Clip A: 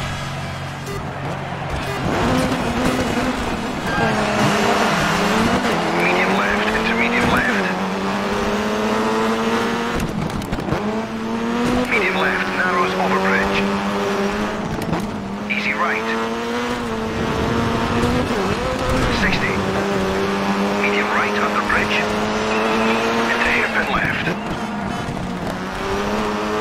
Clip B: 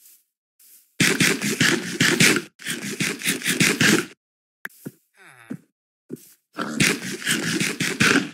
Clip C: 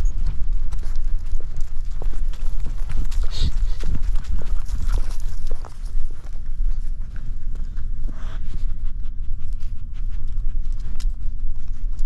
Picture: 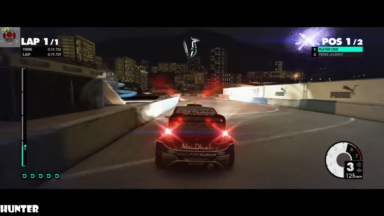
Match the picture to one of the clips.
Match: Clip A